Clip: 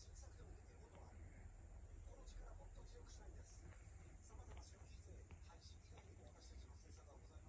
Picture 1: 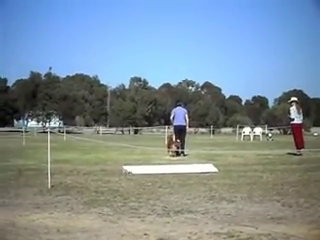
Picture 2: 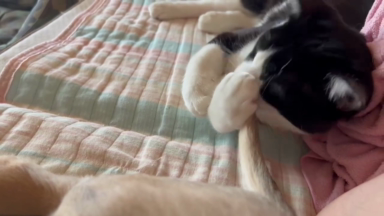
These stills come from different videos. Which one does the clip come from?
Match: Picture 2